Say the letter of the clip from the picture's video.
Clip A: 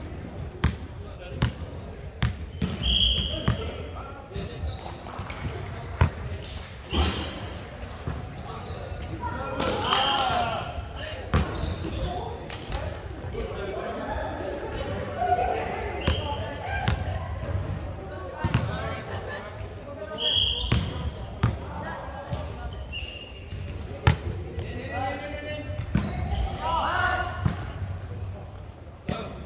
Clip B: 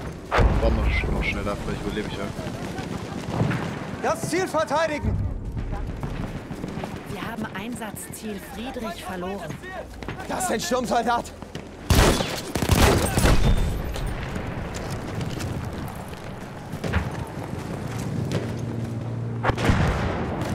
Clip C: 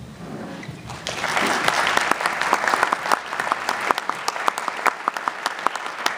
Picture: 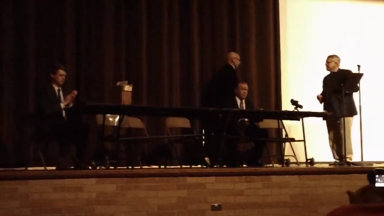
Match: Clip C